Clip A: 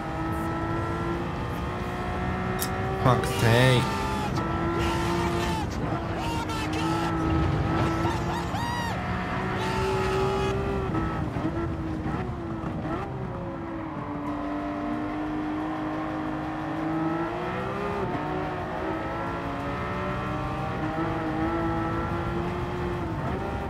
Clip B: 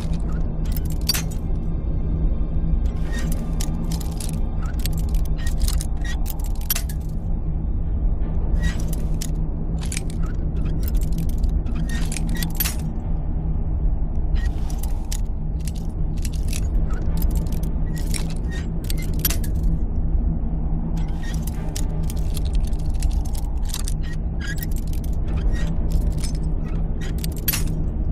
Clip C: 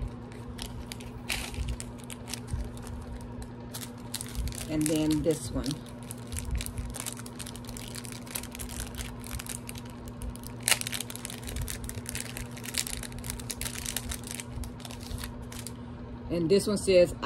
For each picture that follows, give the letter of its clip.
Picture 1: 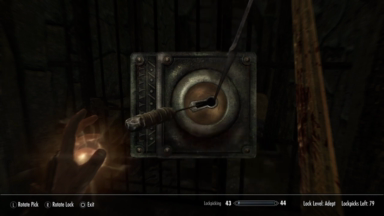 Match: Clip B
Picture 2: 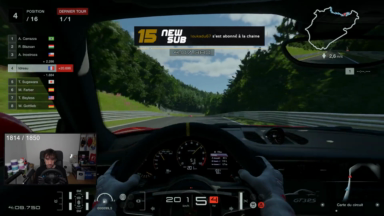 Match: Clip A